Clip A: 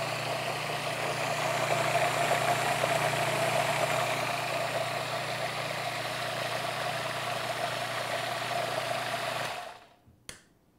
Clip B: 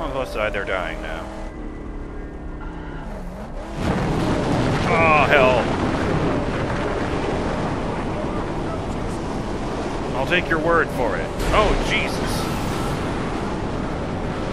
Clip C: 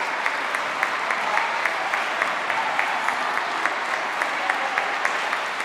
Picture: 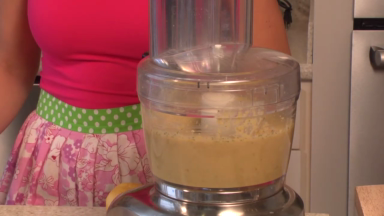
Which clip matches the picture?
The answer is A